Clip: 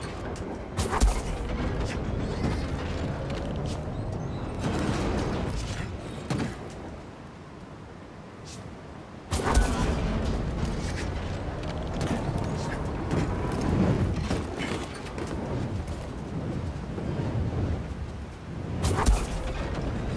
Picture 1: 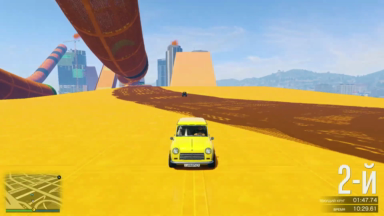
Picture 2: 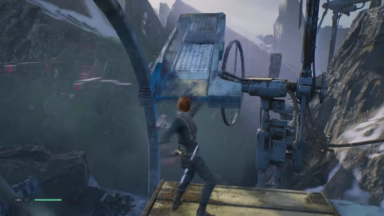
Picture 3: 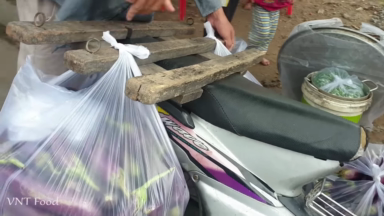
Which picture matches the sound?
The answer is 2